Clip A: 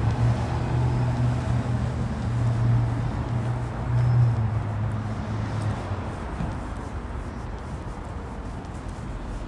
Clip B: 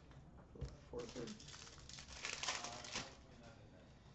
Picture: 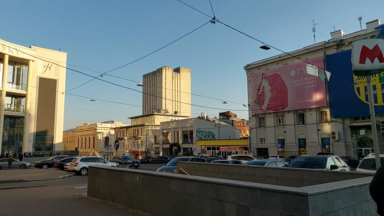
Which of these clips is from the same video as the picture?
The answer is A